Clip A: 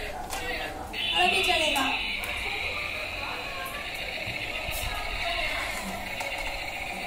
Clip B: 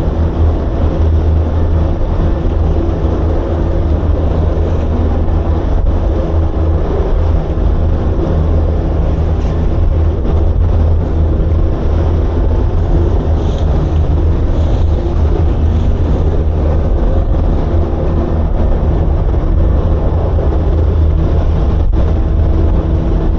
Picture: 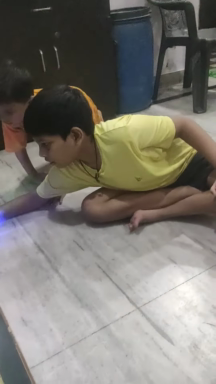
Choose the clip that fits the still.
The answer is A